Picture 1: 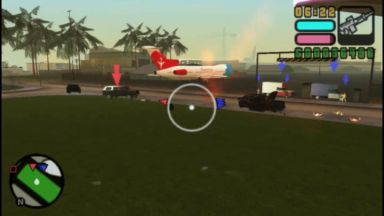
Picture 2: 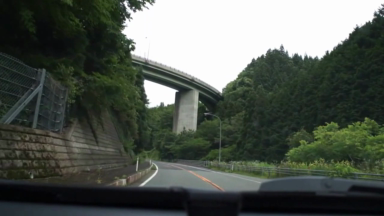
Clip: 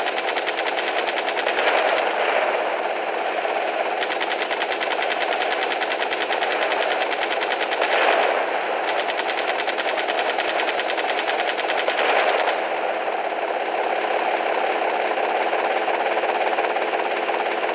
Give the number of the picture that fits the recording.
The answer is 1